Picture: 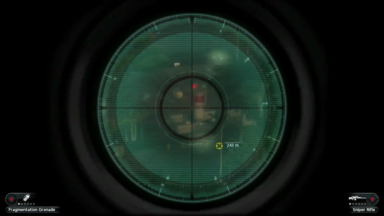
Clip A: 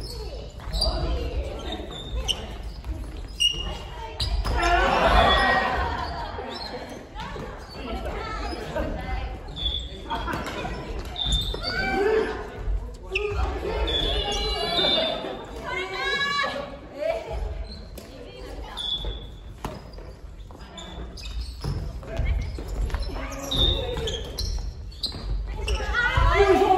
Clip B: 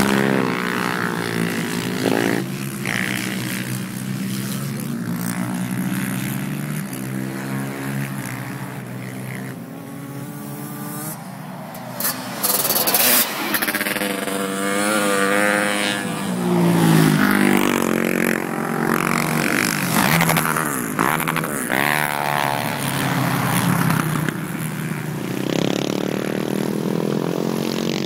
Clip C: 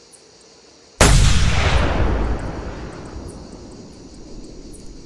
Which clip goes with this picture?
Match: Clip C